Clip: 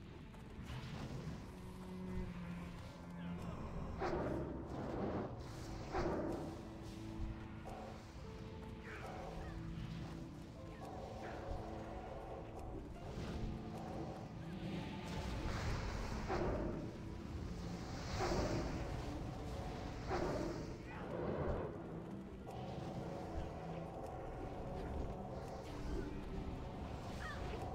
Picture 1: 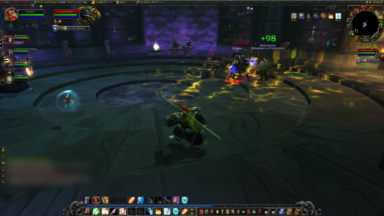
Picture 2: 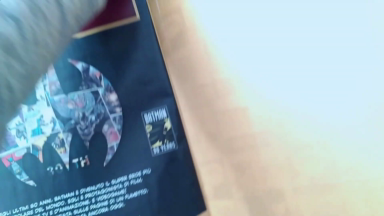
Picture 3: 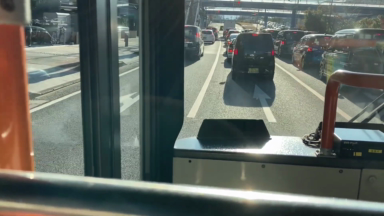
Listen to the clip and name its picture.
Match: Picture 1